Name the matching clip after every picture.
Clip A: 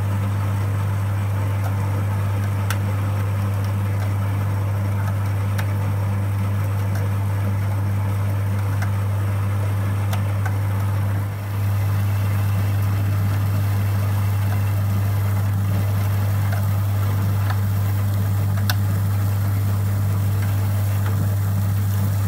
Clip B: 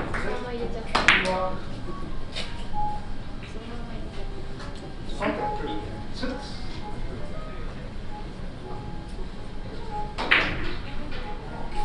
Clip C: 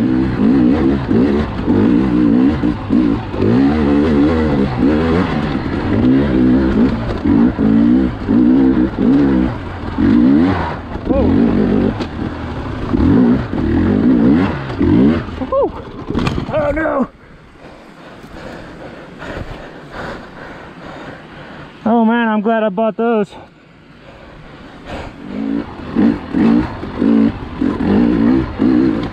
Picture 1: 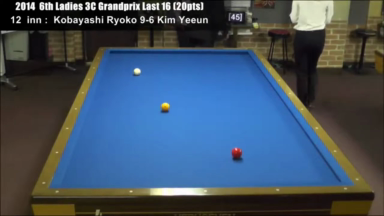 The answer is B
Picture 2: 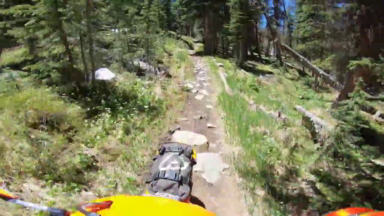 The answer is C